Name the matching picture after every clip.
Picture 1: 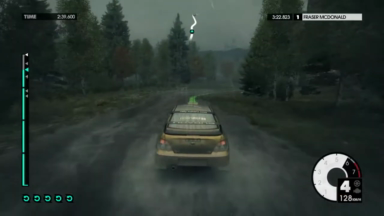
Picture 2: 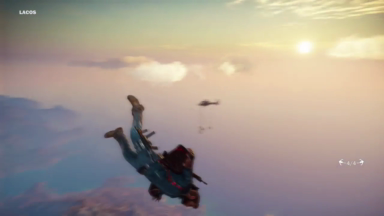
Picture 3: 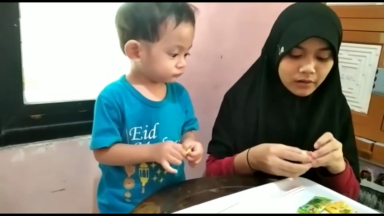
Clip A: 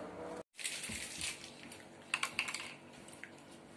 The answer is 3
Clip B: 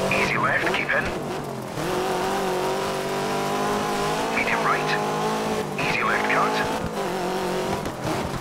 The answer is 1